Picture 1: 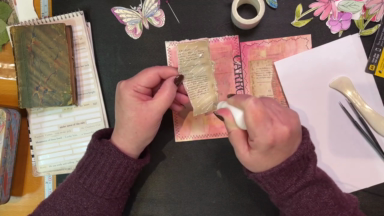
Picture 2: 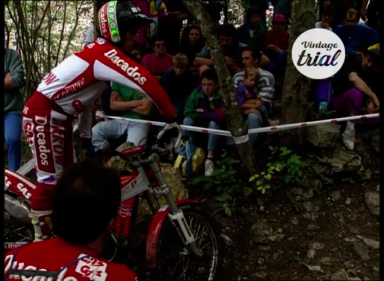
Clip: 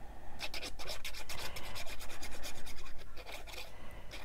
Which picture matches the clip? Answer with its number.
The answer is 1